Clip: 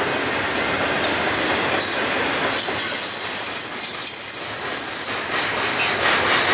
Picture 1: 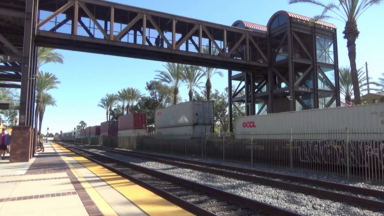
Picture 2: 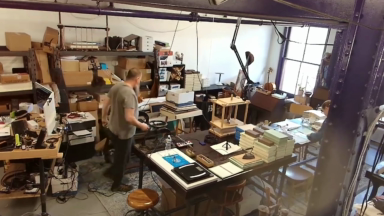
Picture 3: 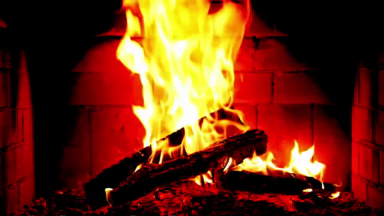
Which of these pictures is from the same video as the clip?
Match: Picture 1